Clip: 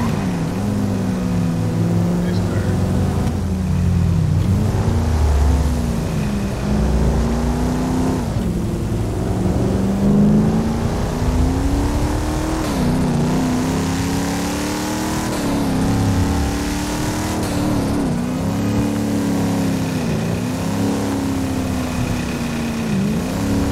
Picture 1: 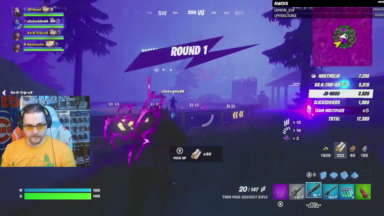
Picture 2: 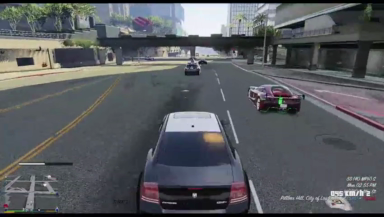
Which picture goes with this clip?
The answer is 2